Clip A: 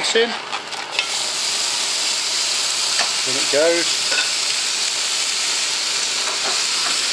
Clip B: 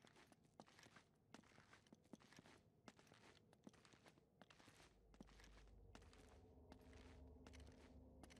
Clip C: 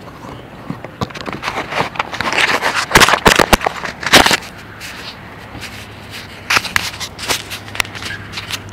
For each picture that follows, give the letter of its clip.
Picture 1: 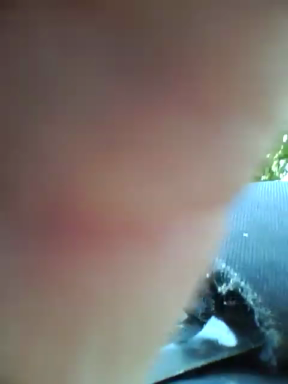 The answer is C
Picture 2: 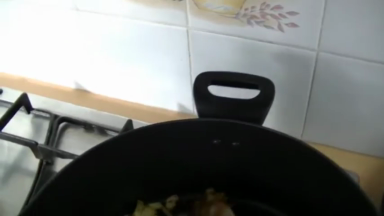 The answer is A